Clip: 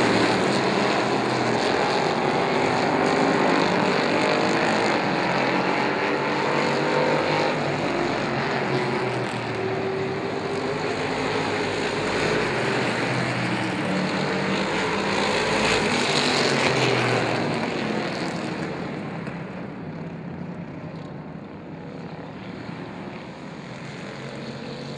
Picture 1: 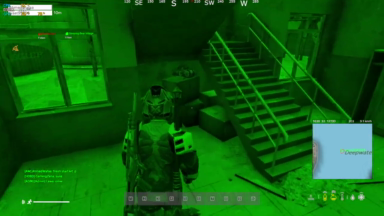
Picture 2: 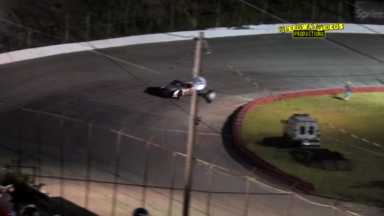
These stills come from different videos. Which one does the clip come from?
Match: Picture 2